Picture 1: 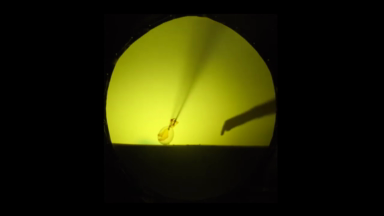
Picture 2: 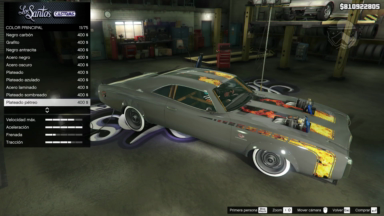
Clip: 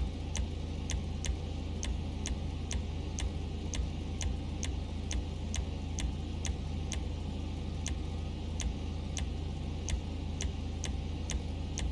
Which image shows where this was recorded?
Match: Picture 2